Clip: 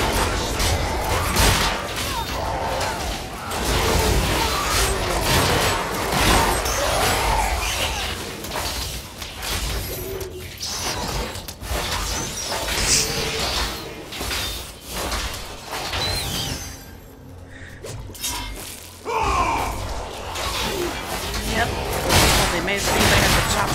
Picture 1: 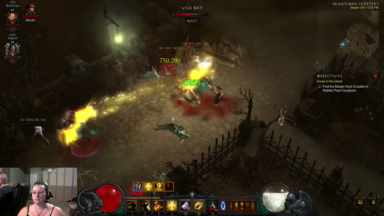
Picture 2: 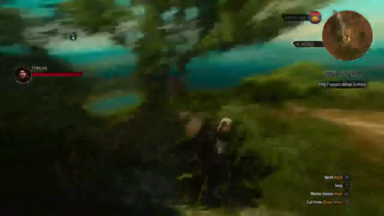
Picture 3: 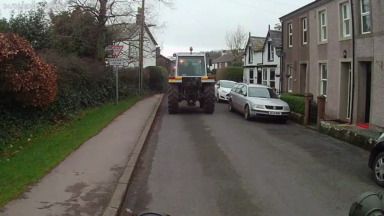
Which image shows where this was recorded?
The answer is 1